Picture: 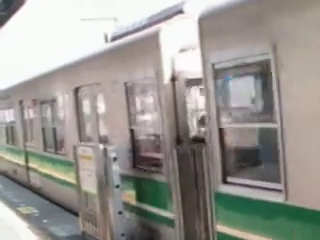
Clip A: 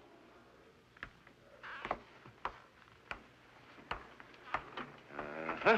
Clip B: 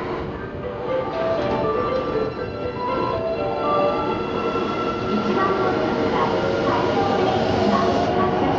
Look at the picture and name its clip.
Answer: B